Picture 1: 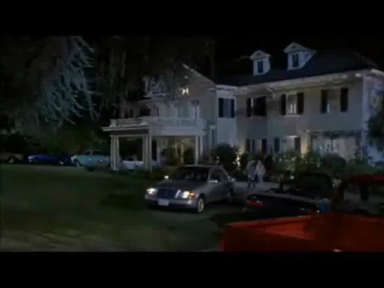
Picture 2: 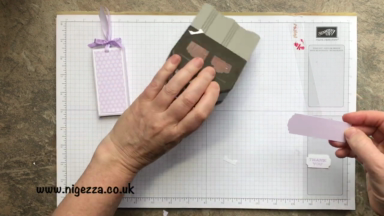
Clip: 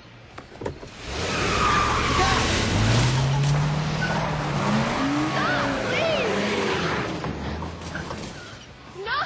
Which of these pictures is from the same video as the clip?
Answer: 1